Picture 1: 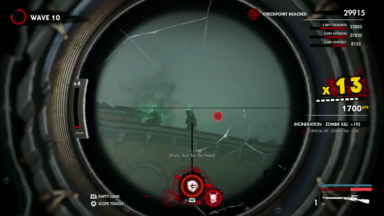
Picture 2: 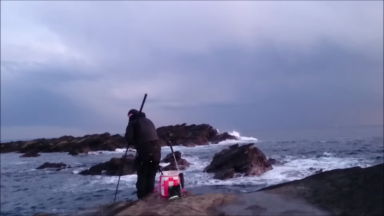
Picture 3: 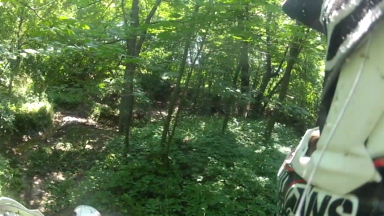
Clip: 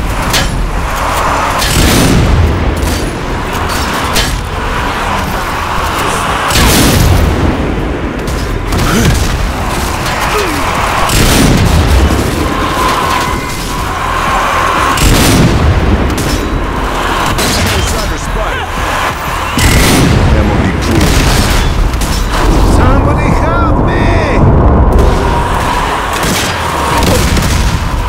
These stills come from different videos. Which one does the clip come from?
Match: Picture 1